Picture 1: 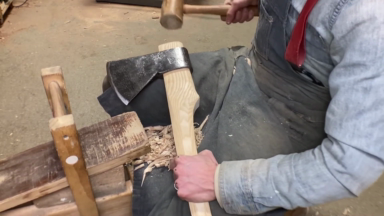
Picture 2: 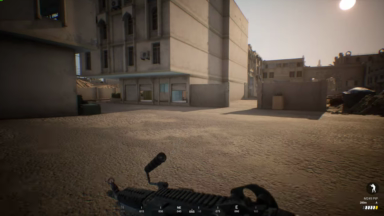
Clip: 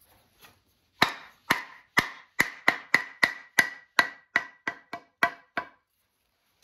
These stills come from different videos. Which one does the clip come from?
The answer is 1